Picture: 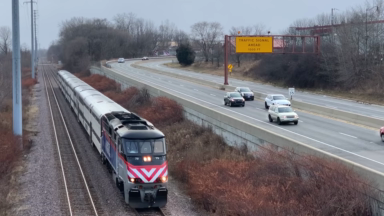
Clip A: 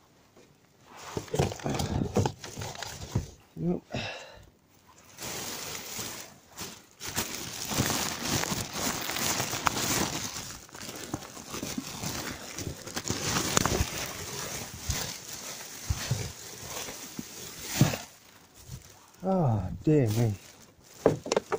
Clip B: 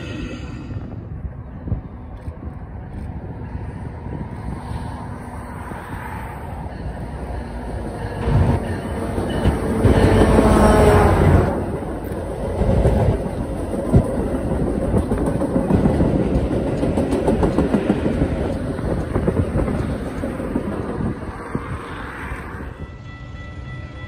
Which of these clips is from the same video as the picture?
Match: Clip B